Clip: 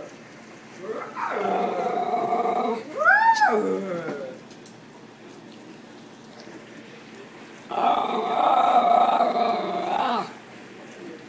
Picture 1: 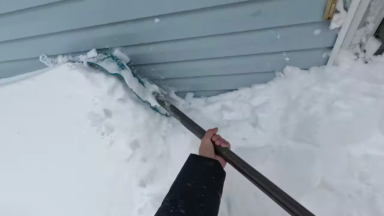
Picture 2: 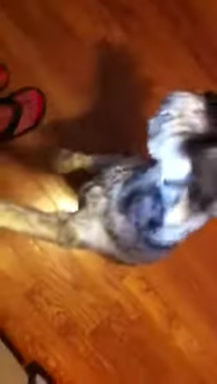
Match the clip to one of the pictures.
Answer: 2